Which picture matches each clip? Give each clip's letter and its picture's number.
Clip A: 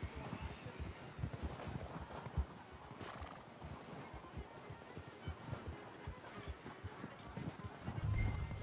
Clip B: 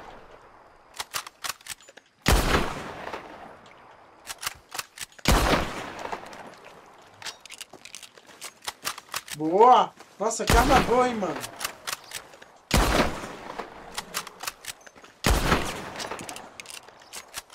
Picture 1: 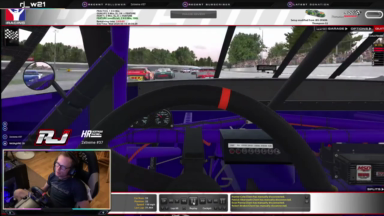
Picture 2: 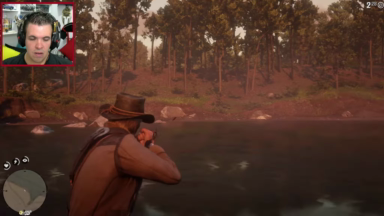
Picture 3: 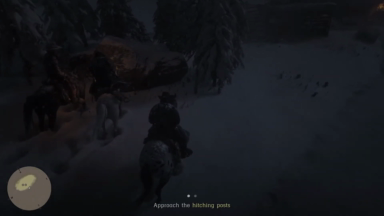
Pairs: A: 3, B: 2